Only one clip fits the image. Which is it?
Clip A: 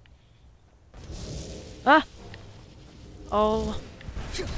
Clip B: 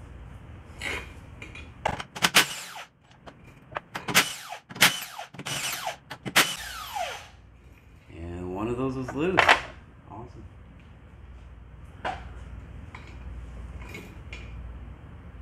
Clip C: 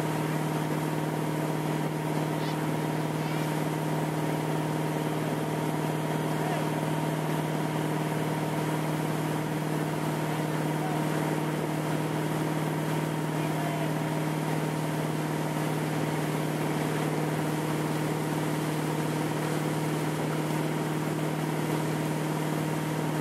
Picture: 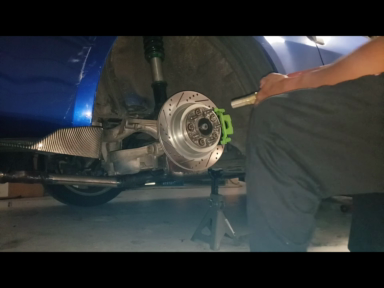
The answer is B